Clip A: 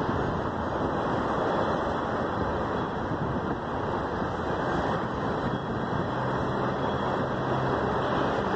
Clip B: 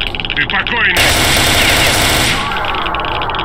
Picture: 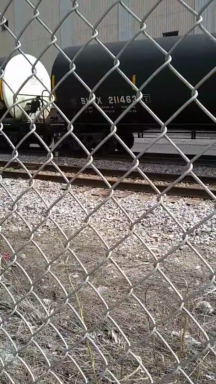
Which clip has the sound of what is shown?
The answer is A